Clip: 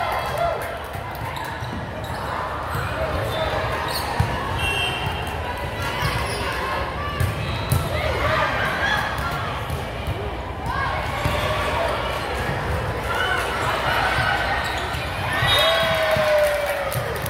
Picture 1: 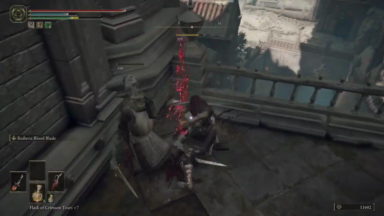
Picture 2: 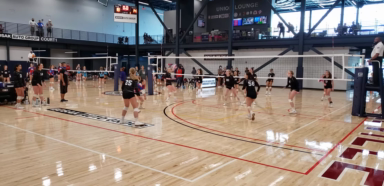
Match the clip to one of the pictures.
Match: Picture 2